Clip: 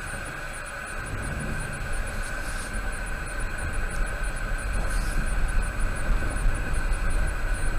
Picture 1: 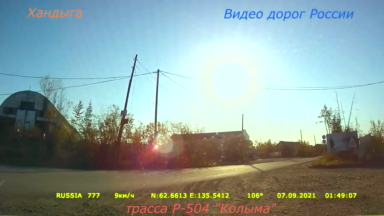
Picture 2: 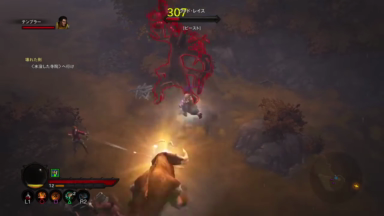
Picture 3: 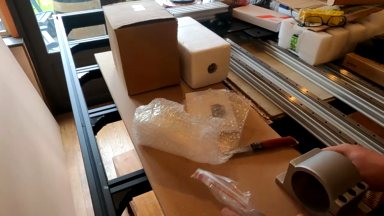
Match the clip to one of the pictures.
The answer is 1